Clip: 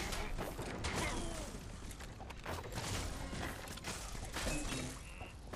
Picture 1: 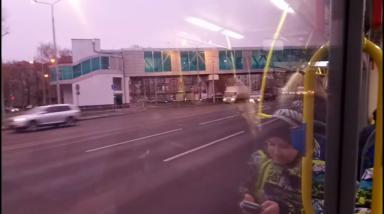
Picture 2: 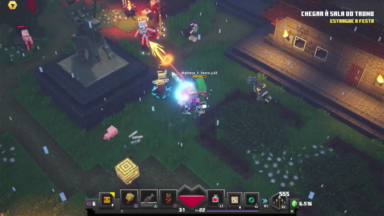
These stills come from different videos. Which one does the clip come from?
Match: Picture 2